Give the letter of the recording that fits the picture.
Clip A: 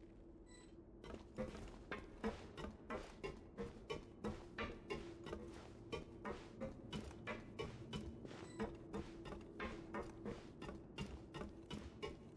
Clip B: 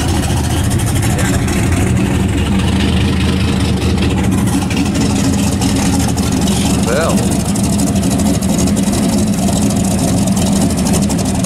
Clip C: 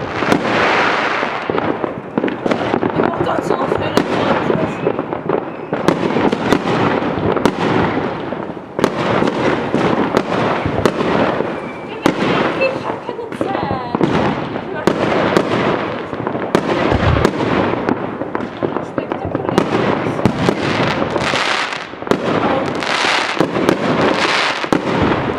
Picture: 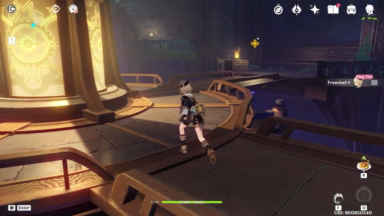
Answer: A